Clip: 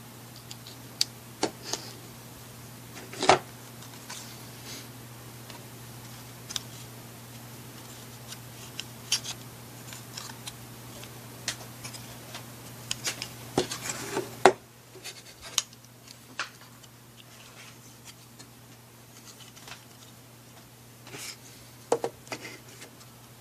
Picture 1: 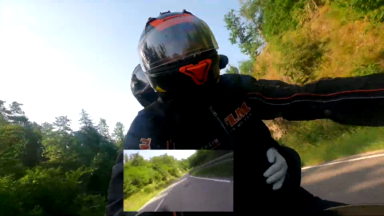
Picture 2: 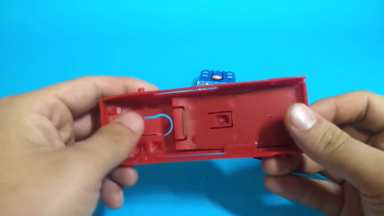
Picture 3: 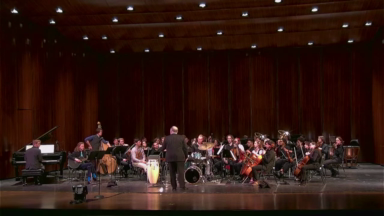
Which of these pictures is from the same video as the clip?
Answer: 2